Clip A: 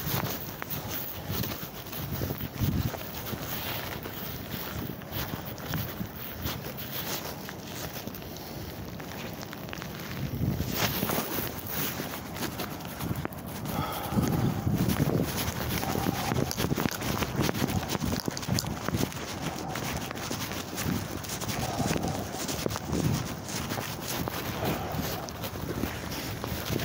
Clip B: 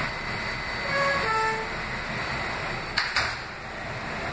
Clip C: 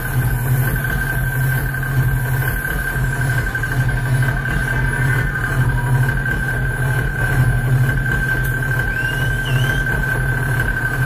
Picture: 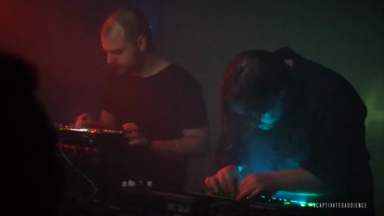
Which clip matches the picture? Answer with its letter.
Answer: C